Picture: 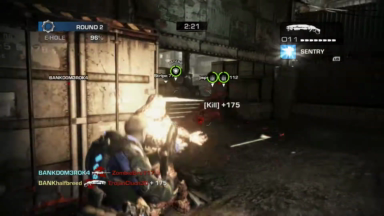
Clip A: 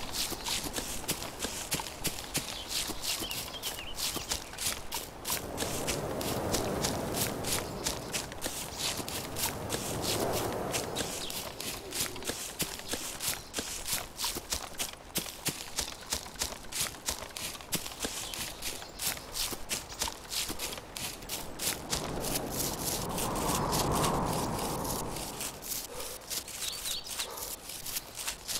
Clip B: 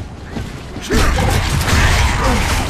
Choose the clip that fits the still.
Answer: B